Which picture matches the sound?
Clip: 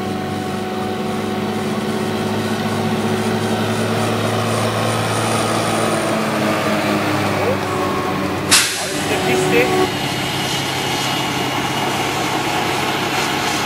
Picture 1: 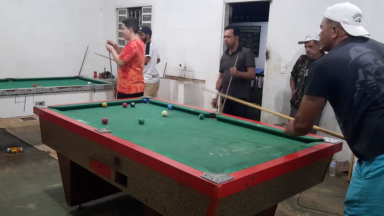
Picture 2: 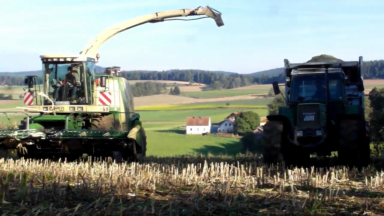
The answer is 2